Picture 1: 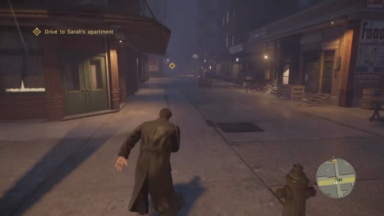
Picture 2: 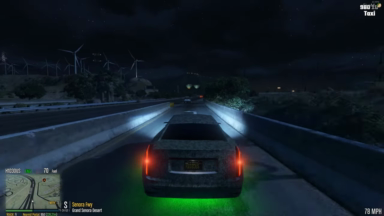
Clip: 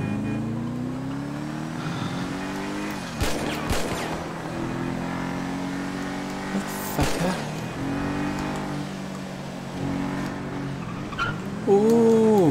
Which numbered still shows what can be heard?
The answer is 2